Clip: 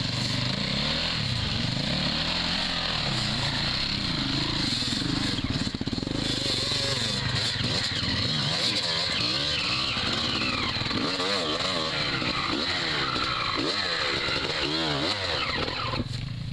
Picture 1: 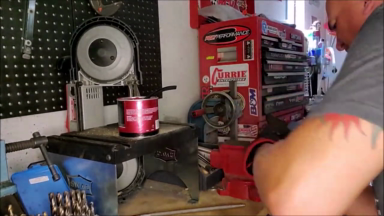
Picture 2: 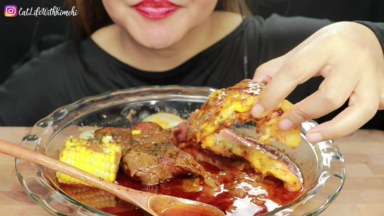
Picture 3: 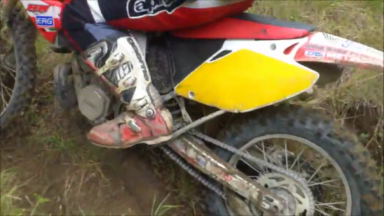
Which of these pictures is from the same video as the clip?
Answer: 3